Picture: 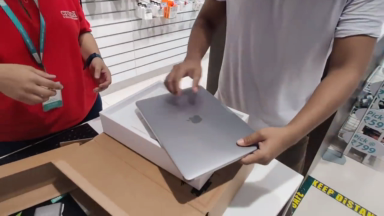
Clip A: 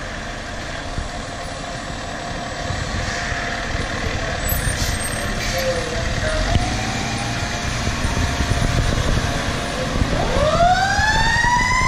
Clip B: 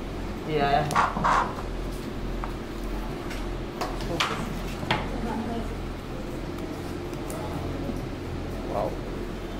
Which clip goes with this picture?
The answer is B